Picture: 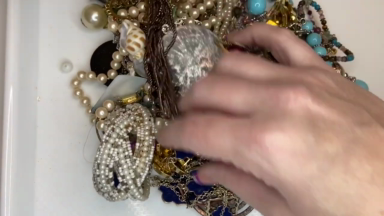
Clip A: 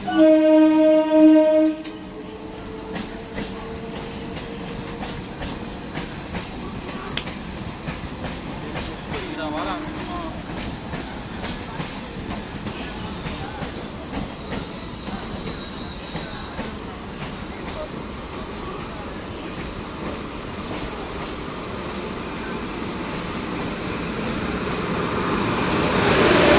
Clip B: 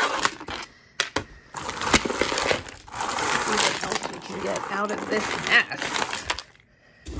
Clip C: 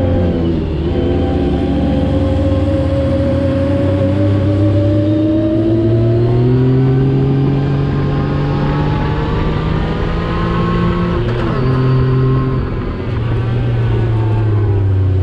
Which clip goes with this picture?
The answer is B